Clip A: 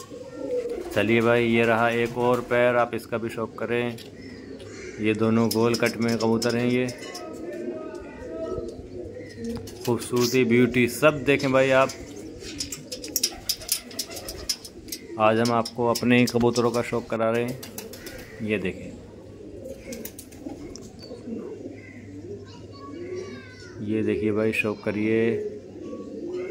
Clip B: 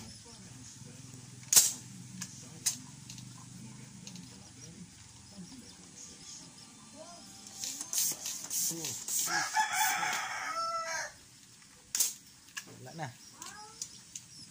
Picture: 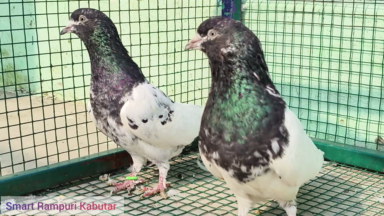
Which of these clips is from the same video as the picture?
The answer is A